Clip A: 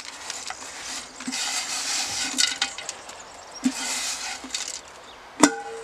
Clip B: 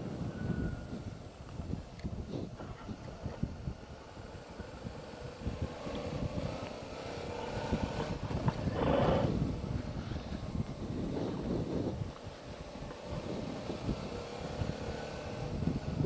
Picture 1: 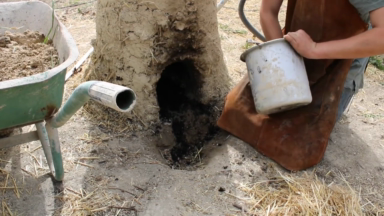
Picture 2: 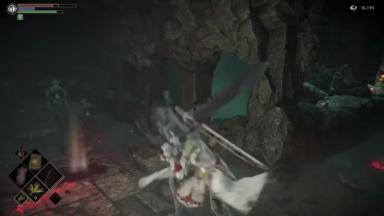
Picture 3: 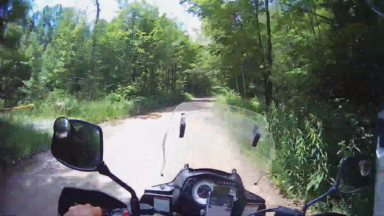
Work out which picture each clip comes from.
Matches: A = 1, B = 3